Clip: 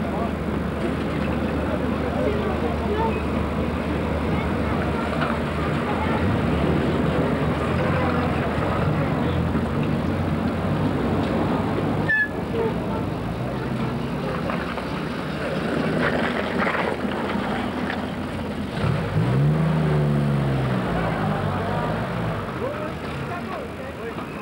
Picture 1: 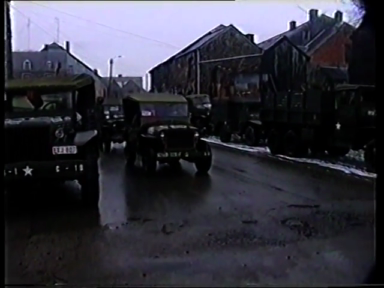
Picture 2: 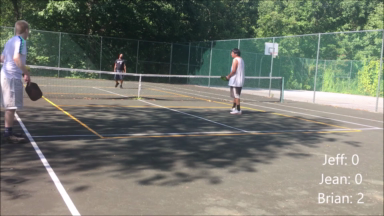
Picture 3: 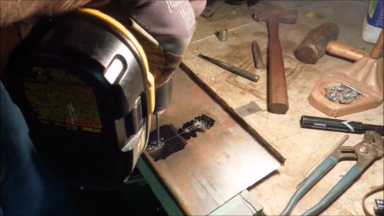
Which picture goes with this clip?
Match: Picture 1